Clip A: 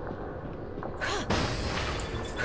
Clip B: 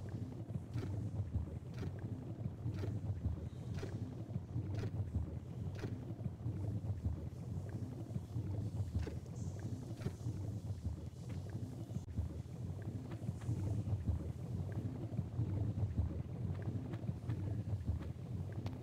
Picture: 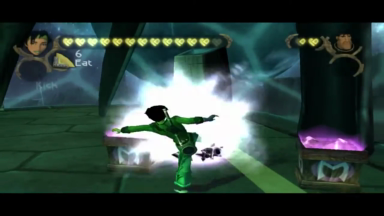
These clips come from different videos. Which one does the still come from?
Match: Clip A